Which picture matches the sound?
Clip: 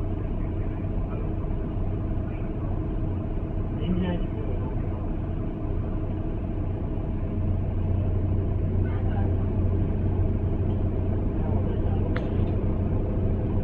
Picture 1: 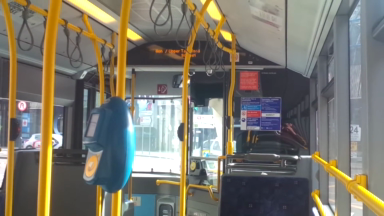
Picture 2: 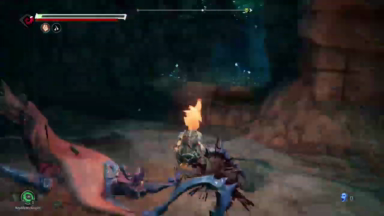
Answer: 1